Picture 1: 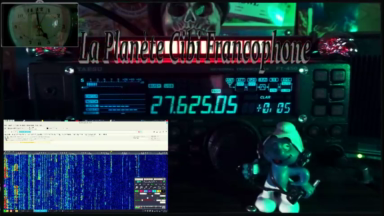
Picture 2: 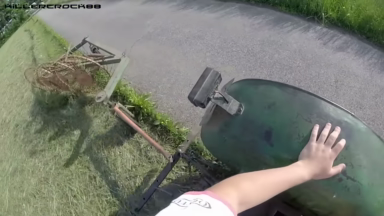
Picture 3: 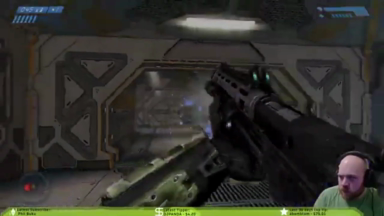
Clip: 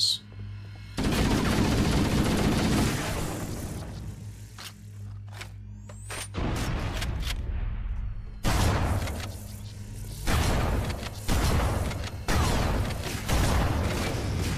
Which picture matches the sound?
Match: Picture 3